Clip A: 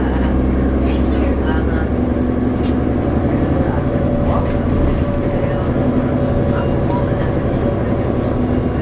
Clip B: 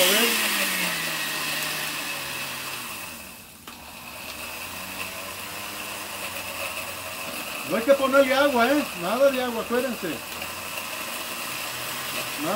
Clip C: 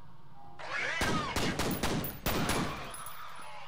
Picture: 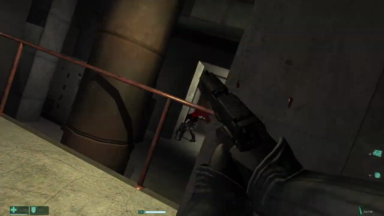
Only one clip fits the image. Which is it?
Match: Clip C